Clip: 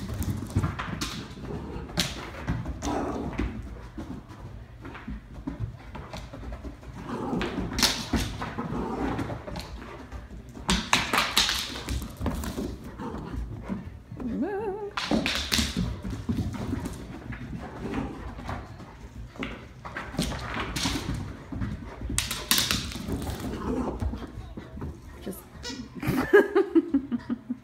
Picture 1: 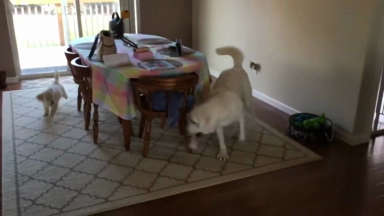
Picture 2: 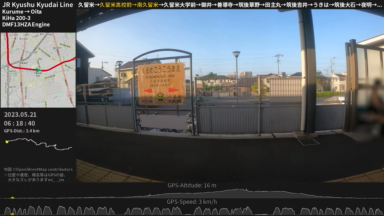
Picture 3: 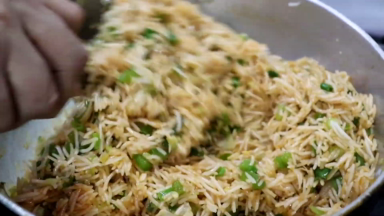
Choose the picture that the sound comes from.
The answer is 1